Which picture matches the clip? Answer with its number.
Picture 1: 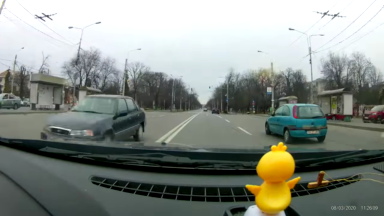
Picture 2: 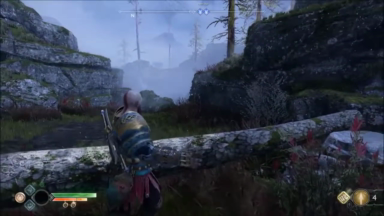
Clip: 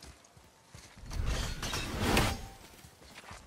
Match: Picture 2